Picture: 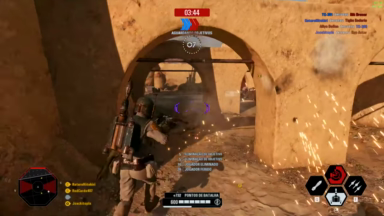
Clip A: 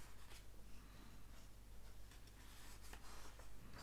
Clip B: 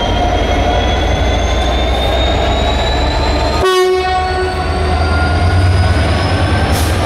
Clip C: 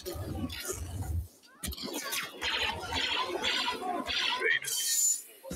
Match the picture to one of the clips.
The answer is C